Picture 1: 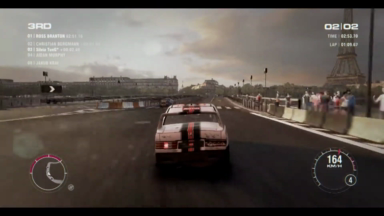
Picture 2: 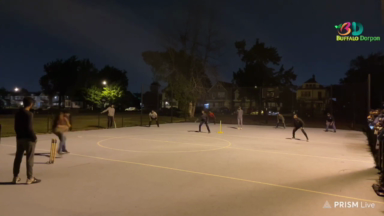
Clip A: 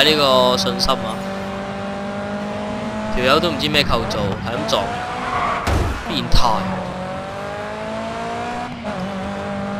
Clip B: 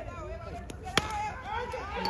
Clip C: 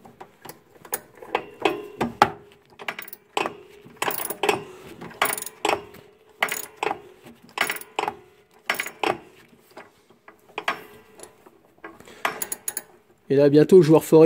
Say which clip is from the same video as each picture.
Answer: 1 A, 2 B